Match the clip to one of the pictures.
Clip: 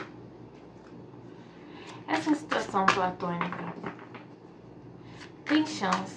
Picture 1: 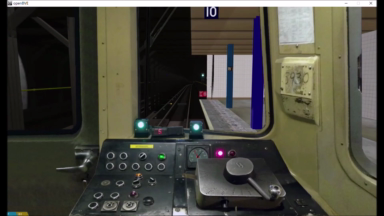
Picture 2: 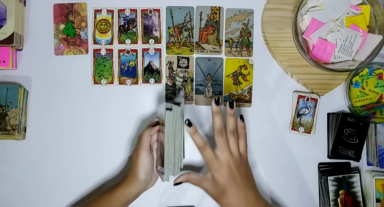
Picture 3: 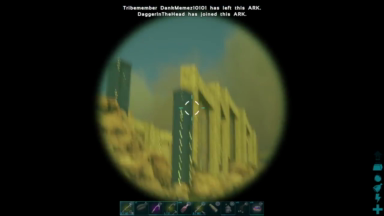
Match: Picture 2